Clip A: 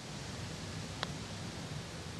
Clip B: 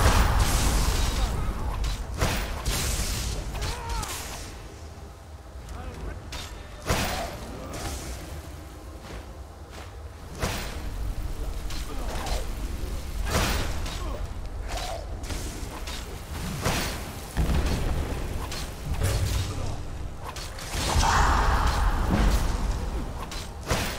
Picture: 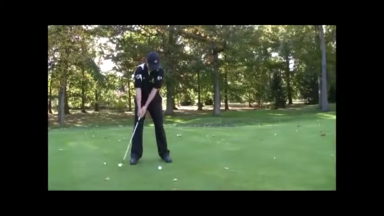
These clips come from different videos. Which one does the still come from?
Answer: A